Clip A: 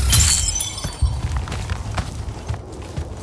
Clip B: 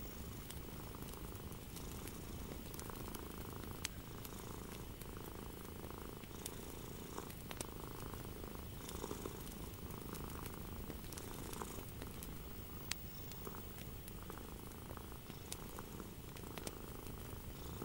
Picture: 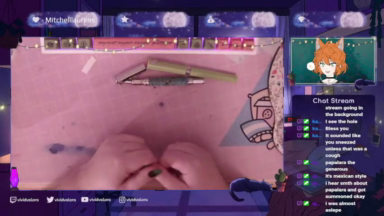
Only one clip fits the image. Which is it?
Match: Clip B